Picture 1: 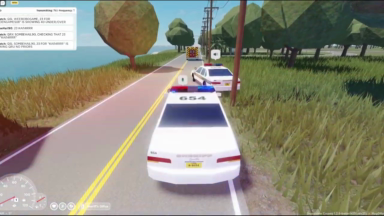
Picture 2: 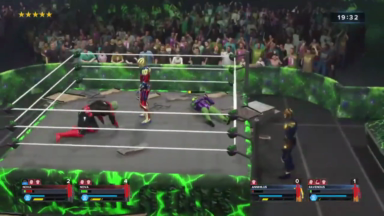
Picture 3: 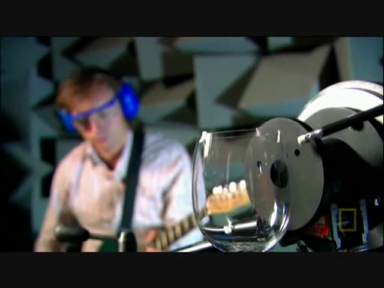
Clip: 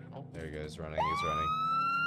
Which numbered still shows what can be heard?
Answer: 1